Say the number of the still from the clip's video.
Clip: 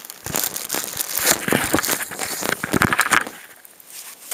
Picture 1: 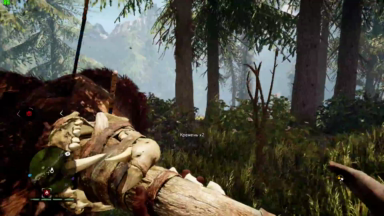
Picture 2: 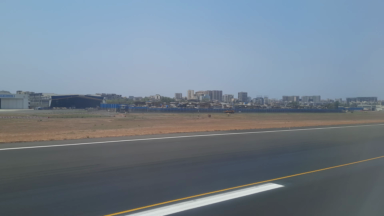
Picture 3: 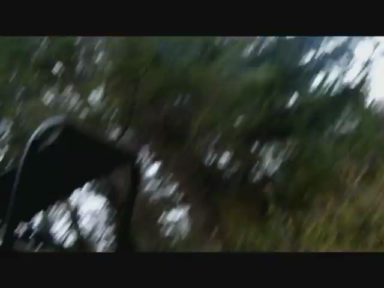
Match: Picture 3